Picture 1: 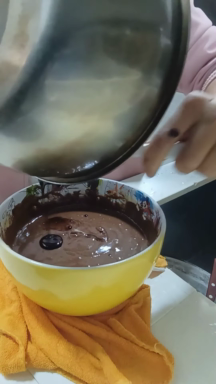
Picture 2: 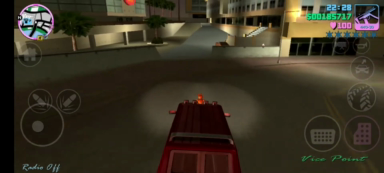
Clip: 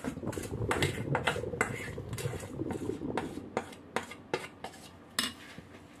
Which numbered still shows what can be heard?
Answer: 1